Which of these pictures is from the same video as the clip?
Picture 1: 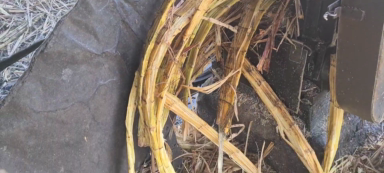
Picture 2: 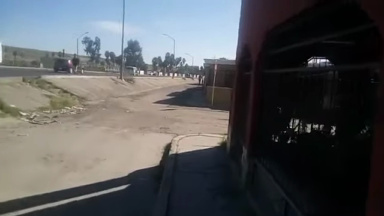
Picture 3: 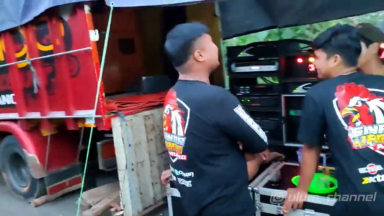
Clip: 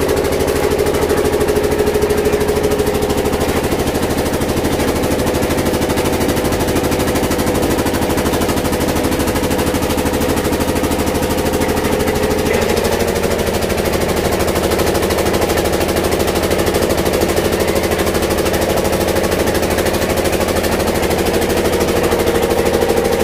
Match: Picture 1